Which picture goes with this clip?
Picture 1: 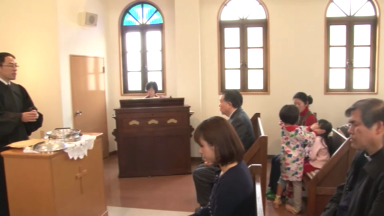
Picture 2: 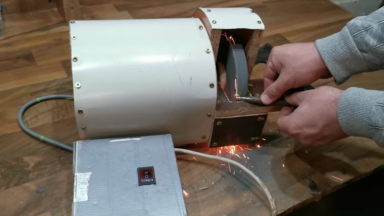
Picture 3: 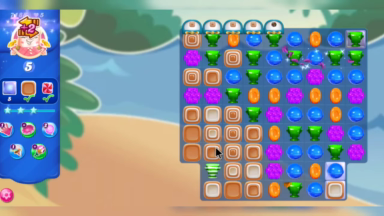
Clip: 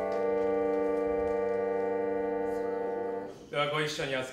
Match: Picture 1